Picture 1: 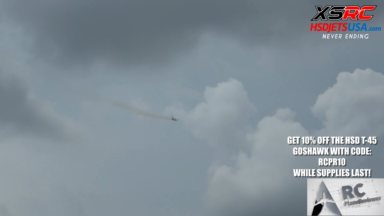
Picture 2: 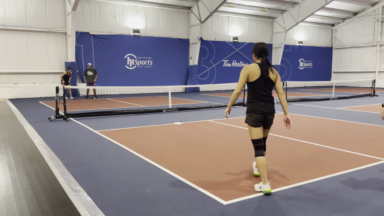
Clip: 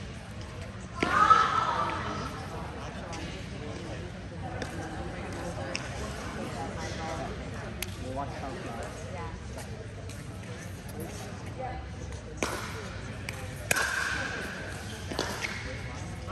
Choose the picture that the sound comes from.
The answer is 2